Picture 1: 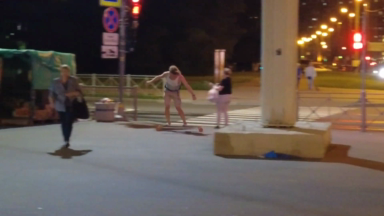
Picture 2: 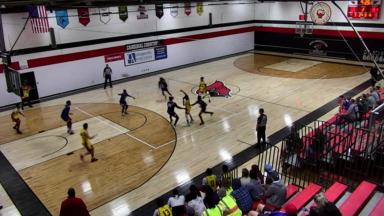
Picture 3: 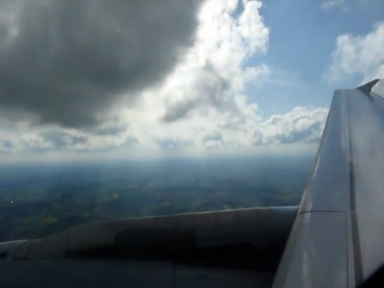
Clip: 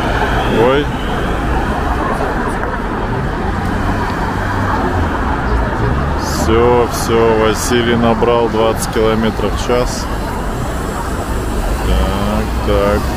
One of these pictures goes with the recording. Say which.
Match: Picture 1